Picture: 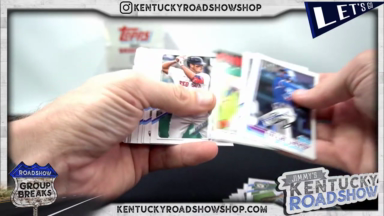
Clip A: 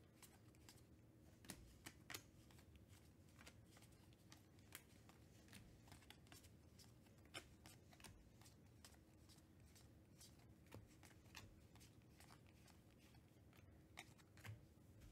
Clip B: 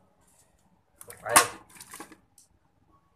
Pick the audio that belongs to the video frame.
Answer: A